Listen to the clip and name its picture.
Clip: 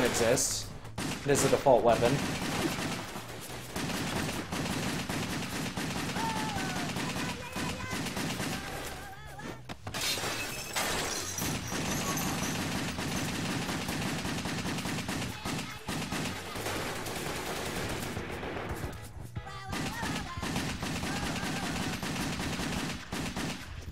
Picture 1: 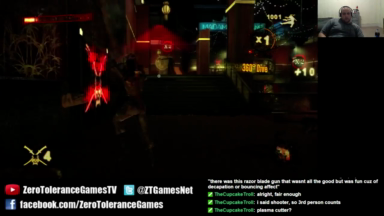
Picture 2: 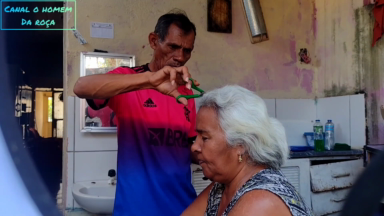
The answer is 1